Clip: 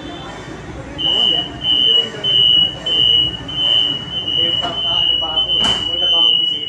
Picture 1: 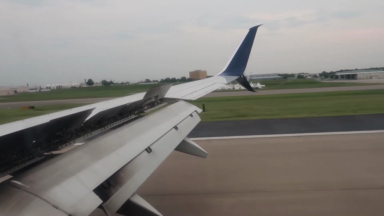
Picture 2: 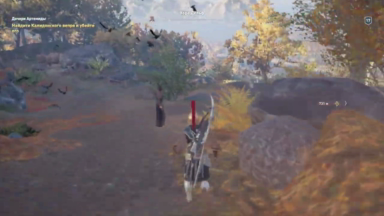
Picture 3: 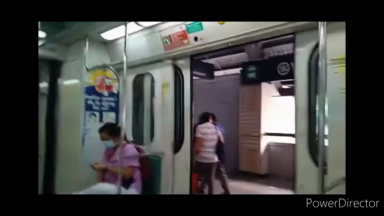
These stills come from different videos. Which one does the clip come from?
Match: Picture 3